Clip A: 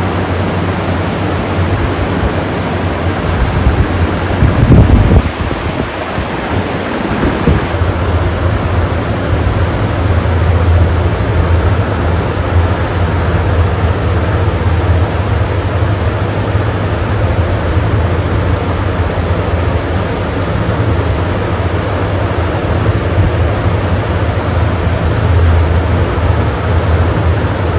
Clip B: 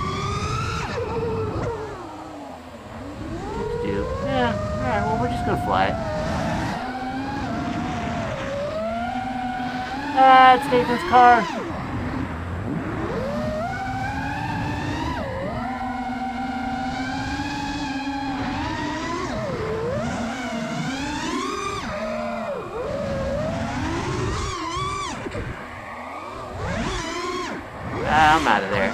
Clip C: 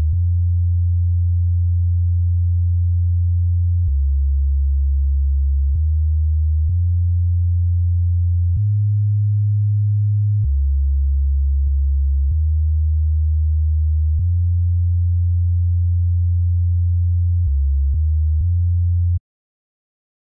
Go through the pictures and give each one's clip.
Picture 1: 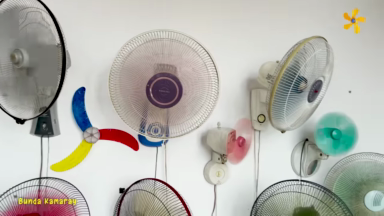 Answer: A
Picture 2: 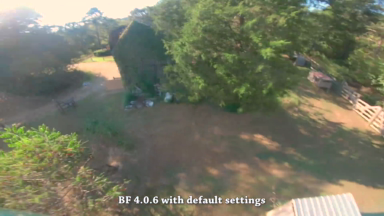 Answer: B